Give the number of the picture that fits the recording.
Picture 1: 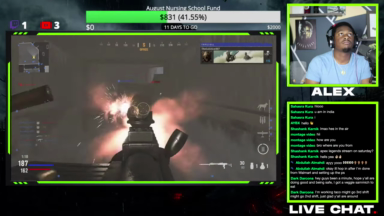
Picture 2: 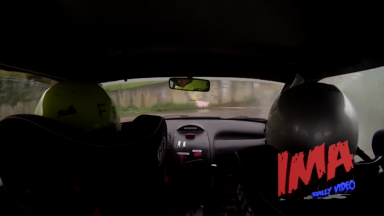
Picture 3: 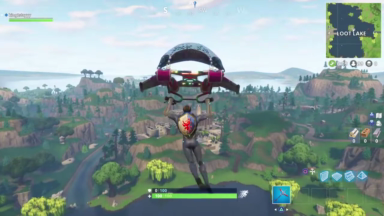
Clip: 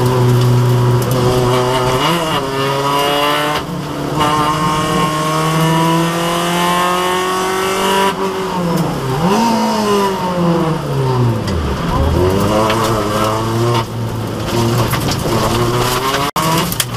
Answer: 2